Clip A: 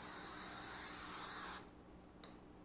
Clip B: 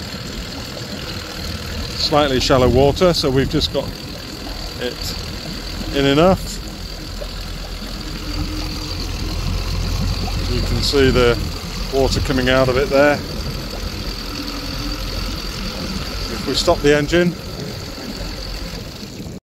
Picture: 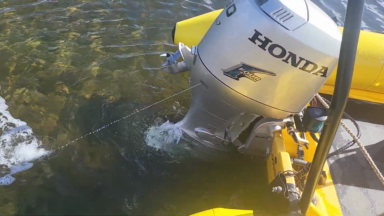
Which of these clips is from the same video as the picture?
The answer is B